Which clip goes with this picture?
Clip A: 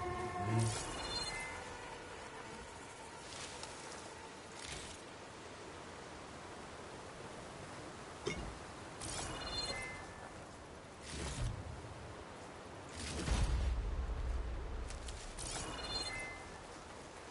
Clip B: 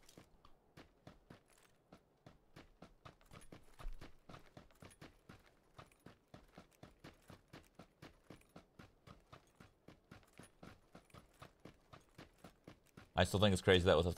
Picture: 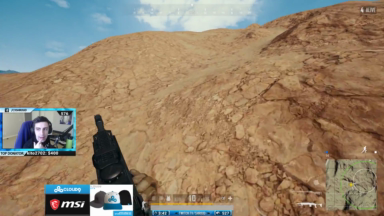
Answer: B